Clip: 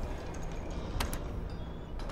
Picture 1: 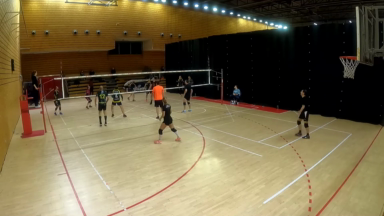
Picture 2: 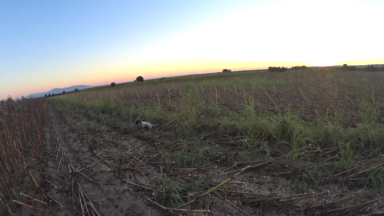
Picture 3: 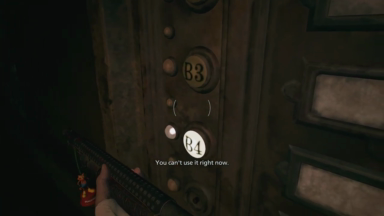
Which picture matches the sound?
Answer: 3